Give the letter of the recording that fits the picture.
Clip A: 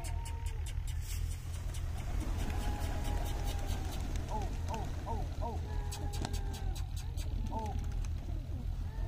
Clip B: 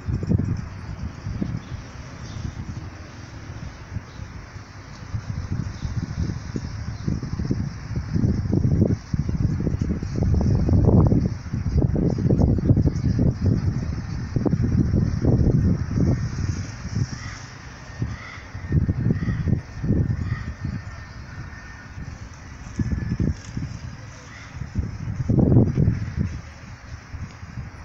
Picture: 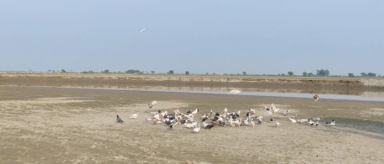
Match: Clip A